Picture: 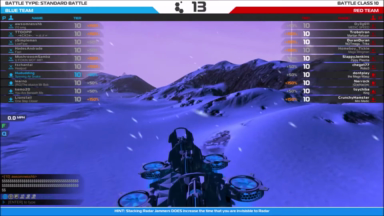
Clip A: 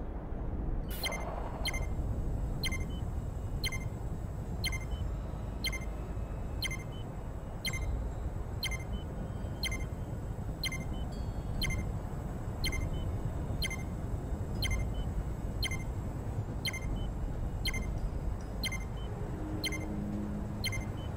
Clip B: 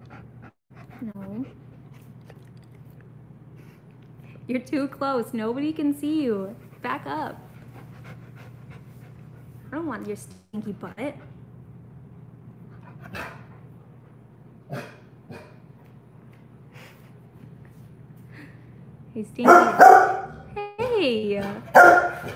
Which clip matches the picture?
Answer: A